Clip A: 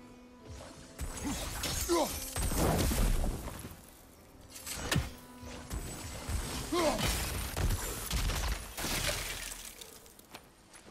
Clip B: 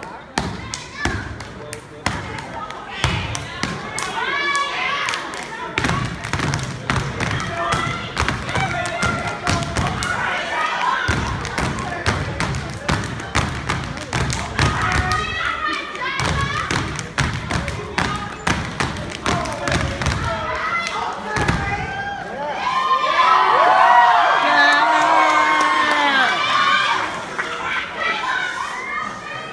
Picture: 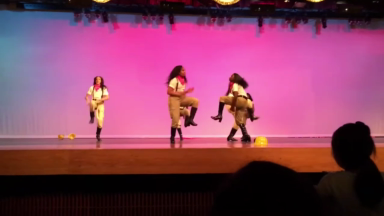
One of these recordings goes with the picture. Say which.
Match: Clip B